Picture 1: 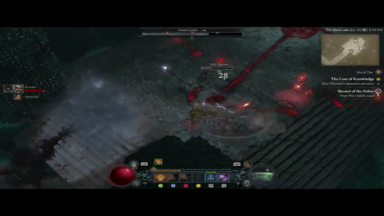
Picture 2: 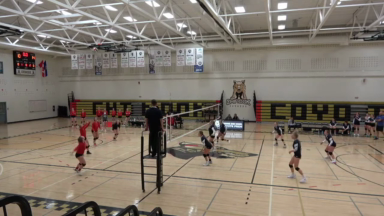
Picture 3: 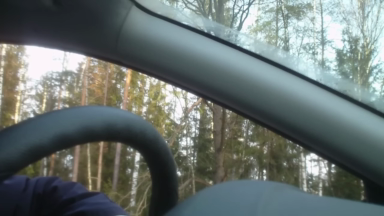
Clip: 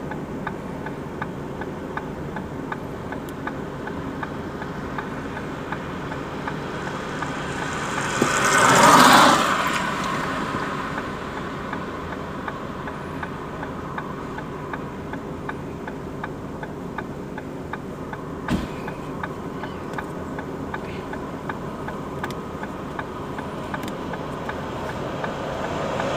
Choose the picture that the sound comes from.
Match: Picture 3